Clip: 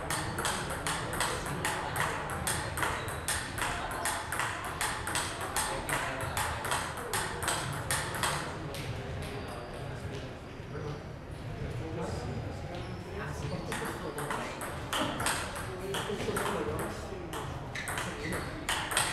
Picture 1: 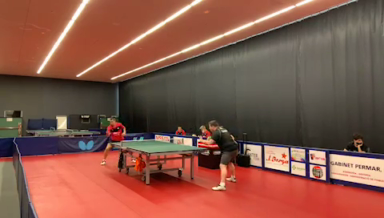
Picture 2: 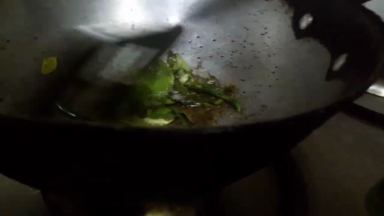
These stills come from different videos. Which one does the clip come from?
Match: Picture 1